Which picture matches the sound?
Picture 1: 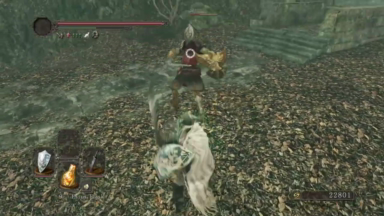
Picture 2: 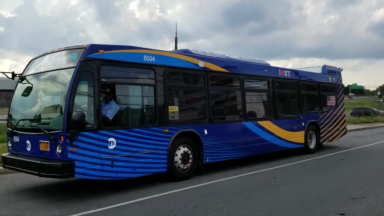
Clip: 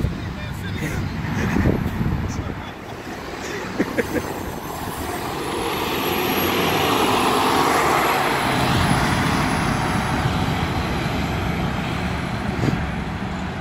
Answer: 2